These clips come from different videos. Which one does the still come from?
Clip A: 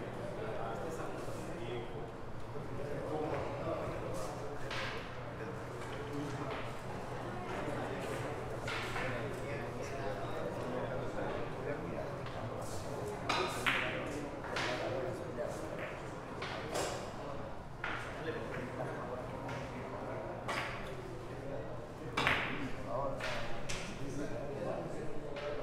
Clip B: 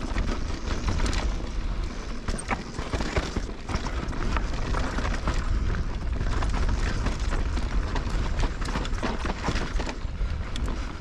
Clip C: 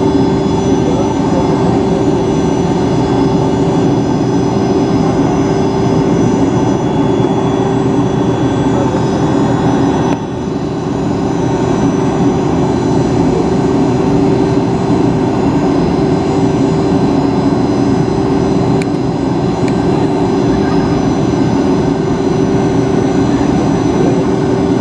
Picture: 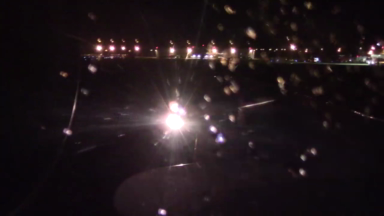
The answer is C